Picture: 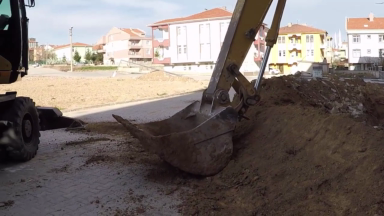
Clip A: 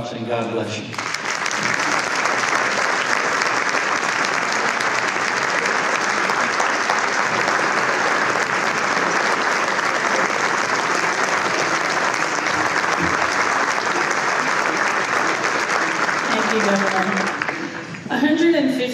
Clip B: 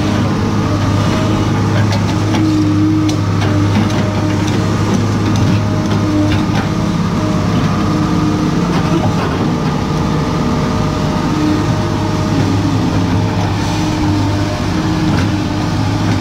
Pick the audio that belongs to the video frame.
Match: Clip B